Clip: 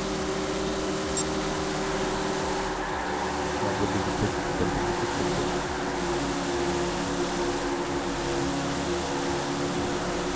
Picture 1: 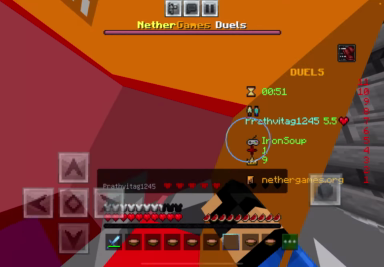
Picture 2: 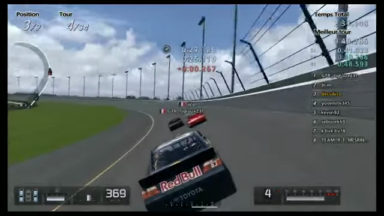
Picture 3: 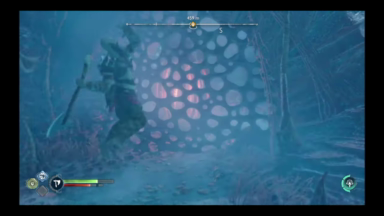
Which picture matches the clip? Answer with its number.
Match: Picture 2